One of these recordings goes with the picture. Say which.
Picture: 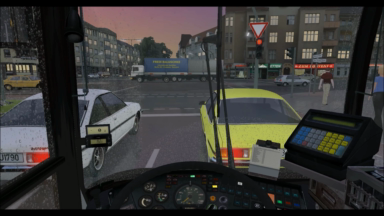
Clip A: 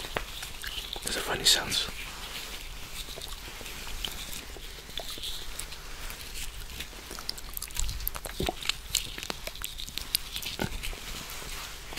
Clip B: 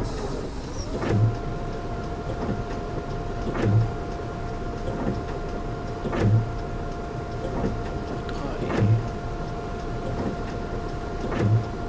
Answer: B